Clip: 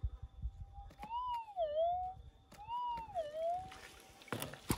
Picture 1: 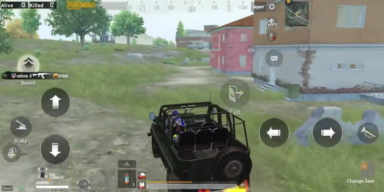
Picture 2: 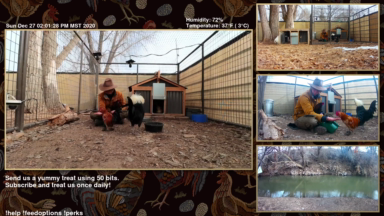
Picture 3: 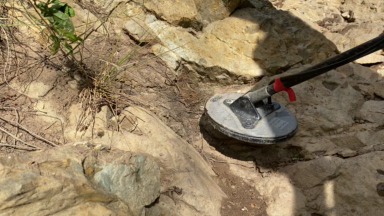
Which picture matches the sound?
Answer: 3